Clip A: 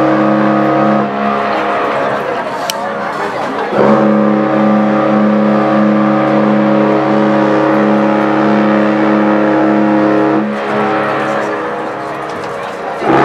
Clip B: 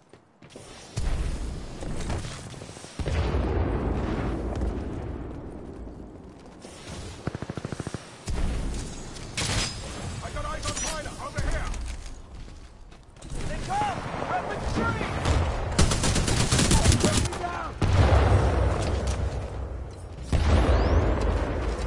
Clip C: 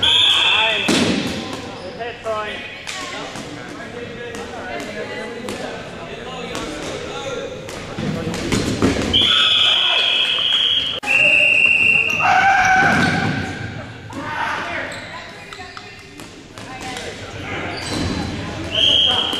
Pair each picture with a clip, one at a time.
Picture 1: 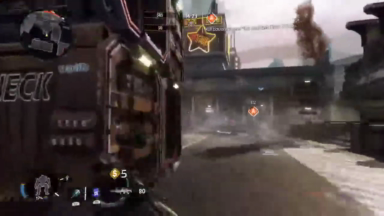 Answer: B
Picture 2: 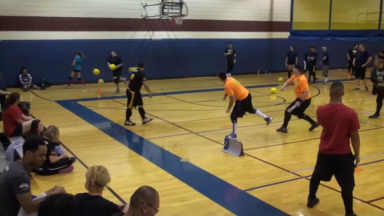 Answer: C